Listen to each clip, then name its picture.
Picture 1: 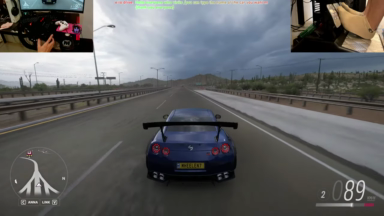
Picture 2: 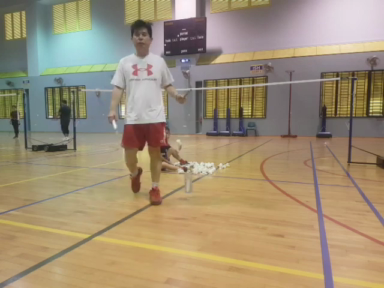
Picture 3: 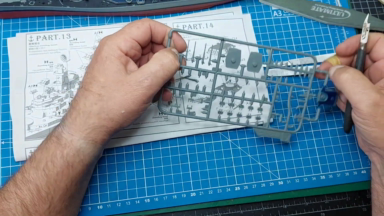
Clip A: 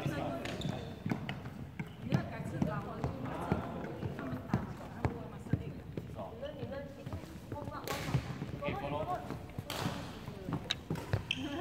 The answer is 2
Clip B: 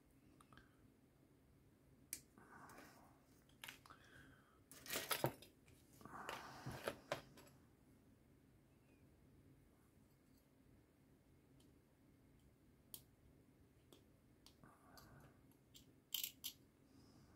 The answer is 3